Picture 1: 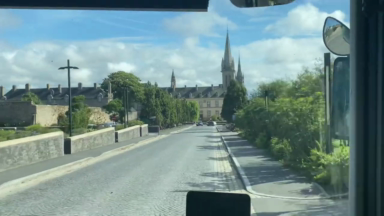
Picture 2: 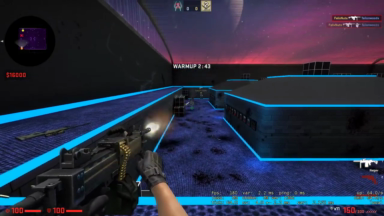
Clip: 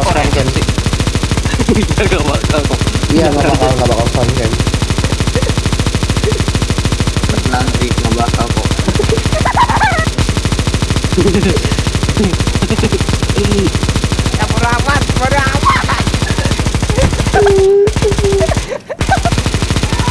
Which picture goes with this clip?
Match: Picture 2